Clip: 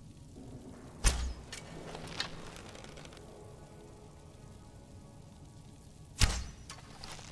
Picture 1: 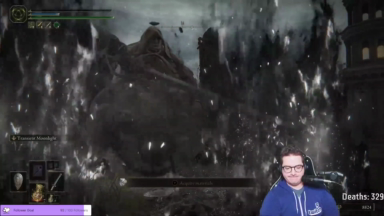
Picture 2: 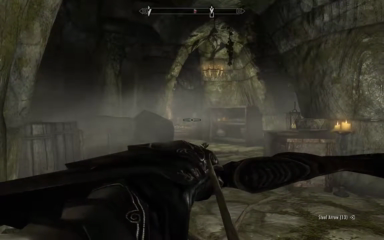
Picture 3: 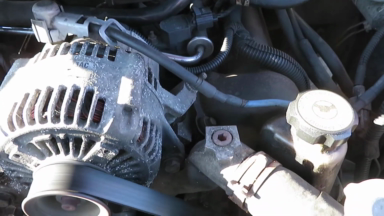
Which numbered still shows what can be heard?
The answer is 2